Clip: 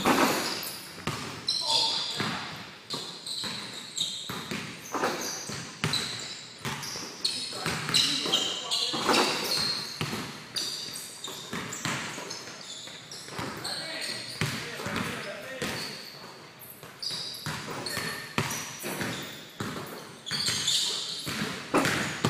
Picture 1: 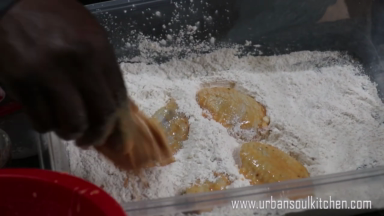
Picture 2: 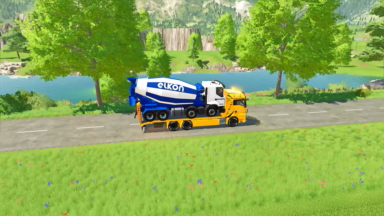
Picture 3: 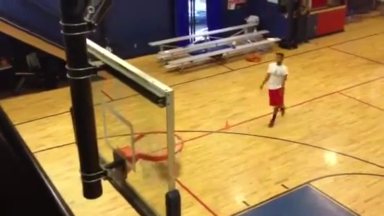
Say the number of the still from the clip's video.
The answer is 3